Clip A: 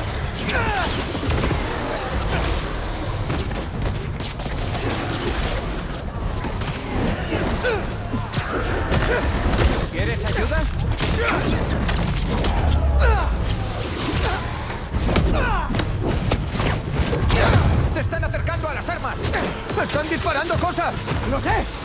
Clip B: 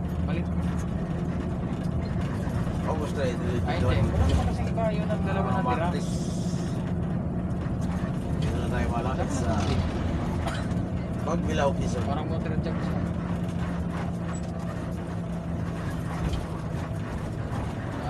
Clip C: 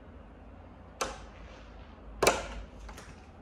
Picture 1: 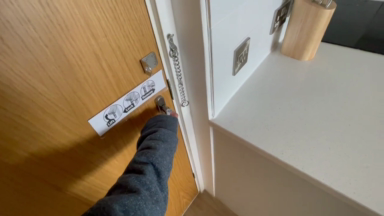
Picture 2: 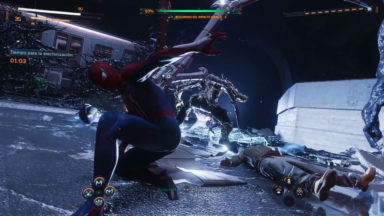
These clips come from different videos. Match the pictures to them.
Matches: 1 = C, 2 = A